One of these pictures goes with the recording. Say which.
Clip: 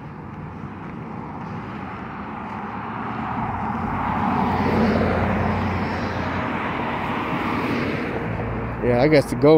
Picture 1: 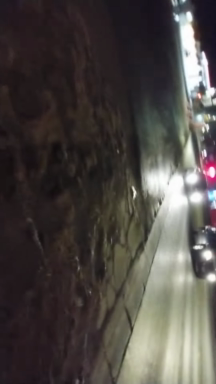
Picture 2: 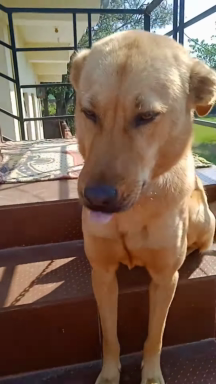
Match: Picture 1